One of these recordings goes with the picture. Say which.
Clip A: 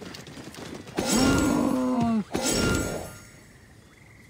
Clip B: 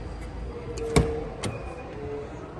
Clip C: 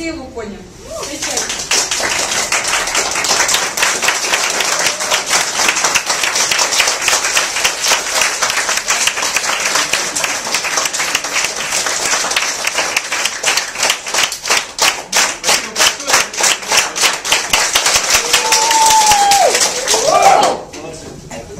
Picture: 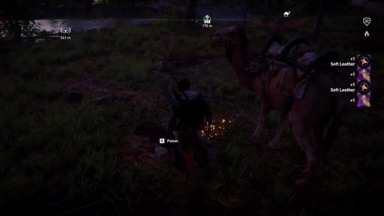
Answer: A